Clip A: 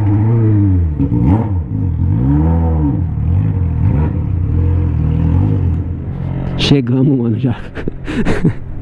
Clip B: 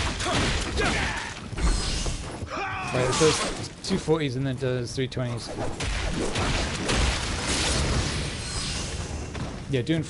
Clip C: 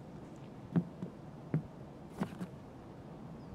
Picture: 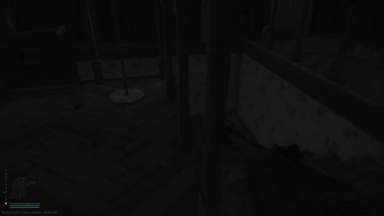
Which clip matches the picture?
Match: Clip C